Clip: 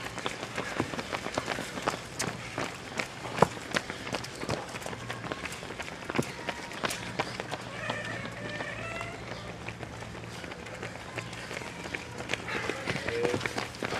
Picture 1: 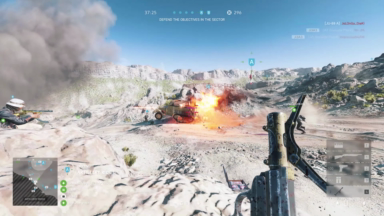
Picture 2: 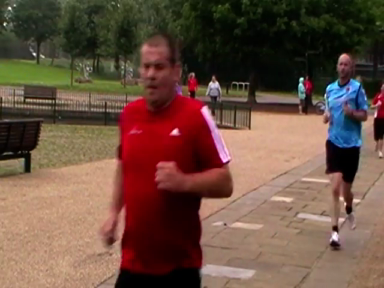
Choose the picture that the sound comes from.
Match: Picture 2